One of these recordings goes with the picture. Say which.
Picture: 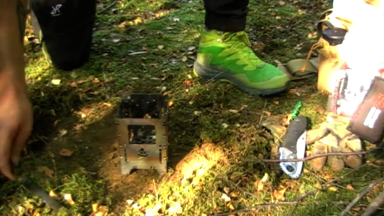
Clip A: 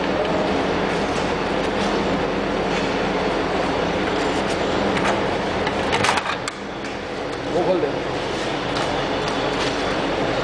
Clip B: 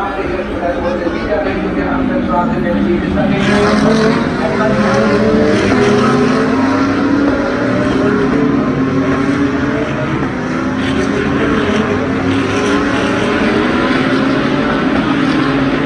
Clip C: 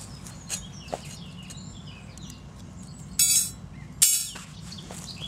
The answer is C